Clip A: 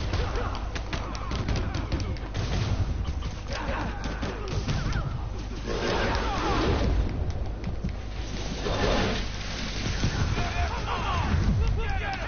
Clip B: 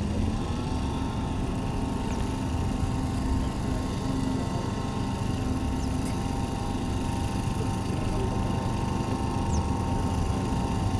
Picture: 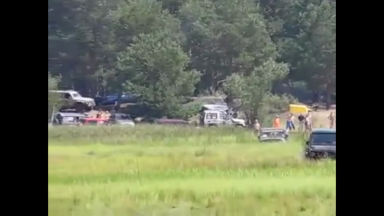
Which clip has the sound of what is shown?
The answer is B